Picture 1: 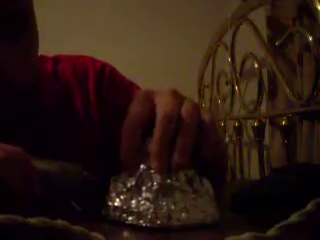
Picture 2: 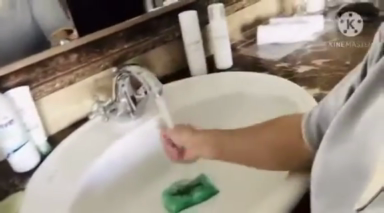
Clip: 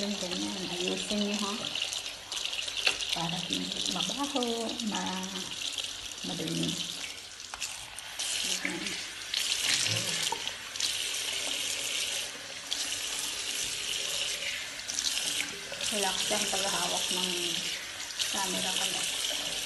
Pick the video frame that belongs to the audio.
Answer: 2